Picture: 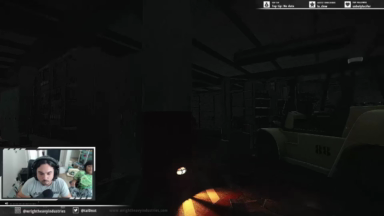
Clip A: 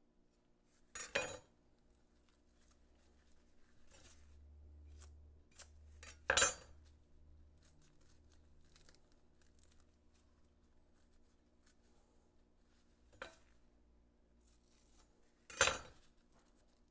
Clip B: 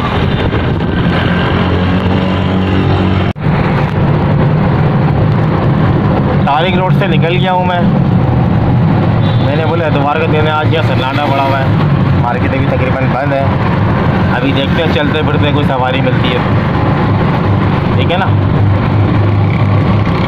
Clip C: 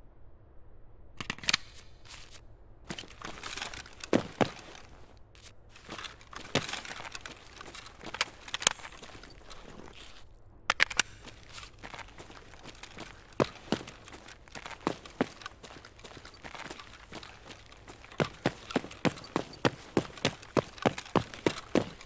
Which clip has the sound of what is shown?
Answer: C